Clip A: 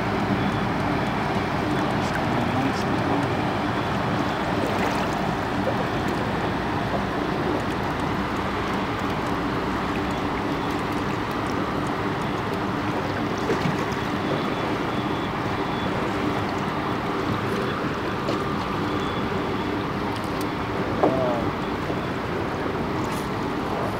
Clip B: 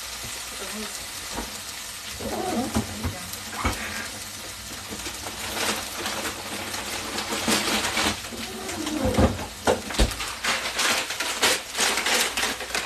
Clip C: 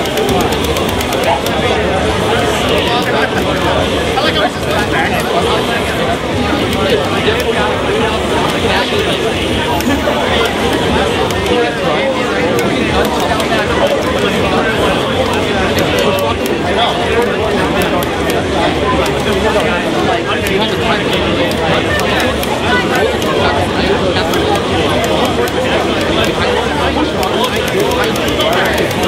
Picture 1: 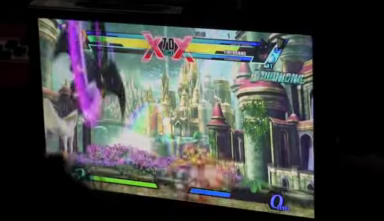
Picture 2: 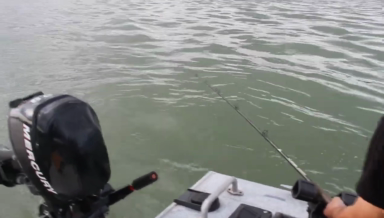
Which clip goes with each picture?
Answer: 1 C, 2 A